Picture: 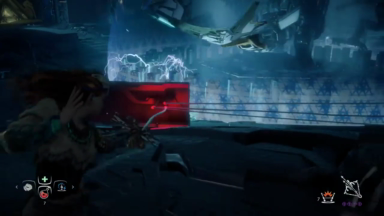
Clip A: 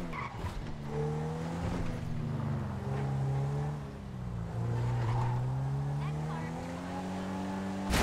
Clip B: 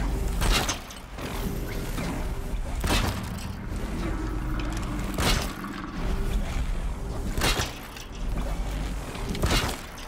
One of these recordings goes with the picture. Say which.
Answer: B